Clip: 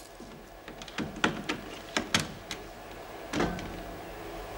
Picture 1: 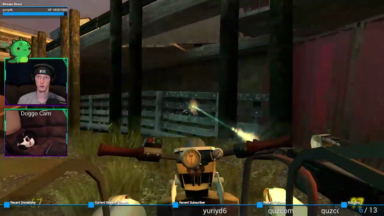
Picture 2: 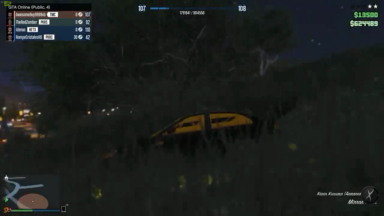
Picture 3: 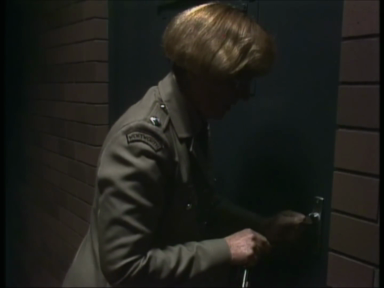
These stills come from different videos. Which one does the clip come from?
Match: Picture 3